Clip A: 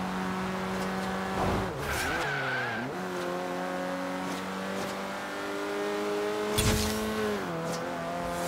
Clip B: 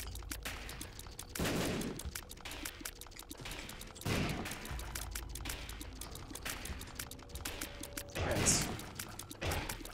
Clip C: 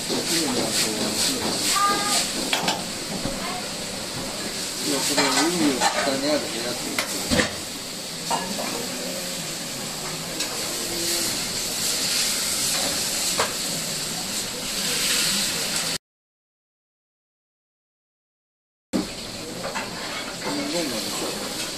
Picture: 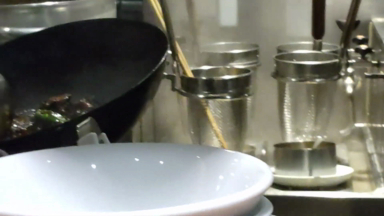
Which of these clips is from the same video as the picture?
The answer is C